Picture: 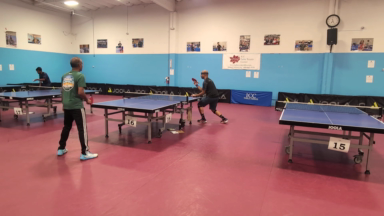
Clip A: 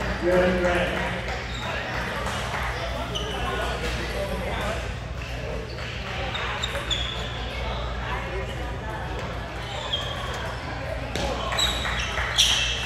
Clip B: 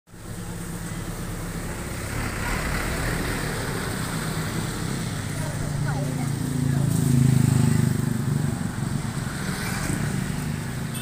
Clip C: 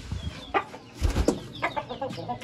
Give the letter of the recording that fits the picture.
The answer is A